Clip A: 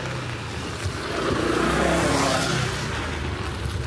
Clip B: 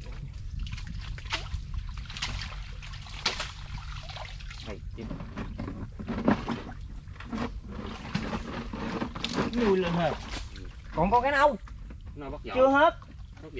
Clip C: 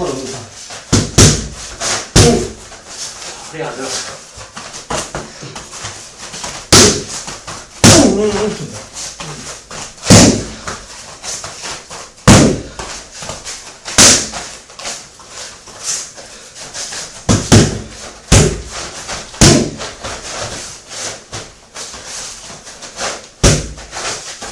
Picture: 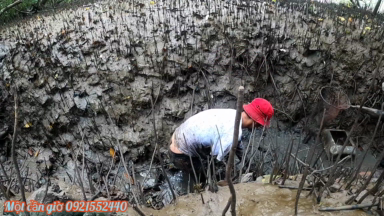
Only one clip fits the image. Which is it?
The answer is B